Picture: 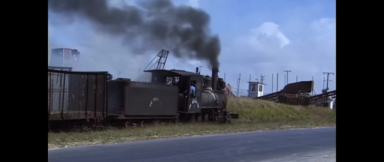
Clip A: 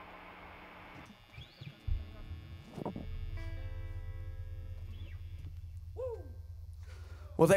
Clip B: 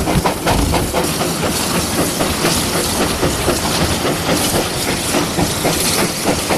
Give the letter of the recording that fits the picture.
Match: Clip B